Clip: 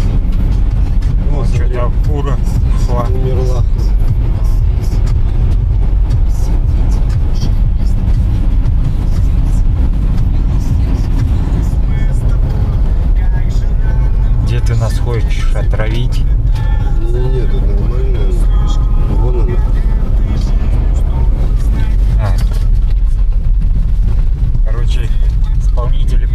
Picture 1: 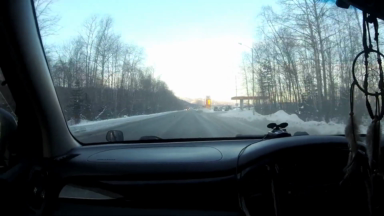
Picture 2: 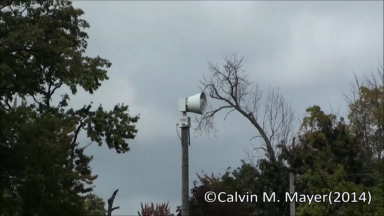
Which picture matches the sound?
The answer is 1